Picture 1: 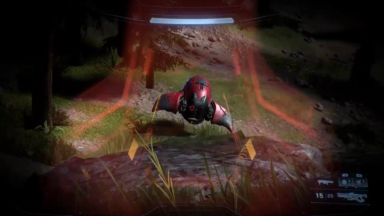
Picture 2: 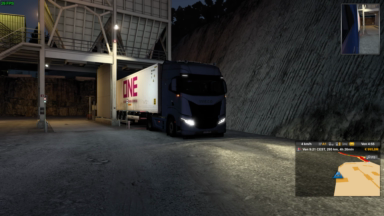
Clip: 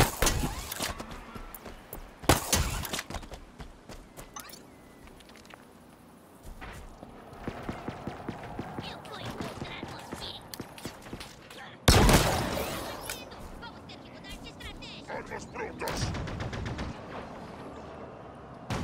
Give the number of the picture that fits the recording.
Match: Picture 1